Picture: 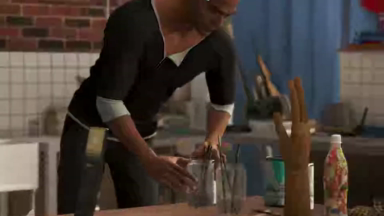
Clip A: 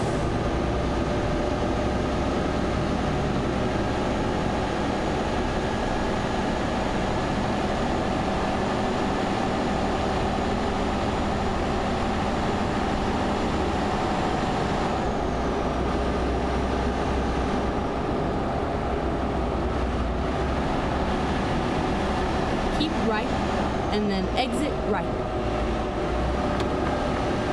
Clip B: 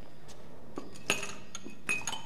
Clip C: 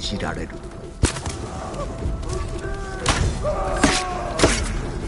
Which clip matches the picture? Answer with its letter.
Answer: B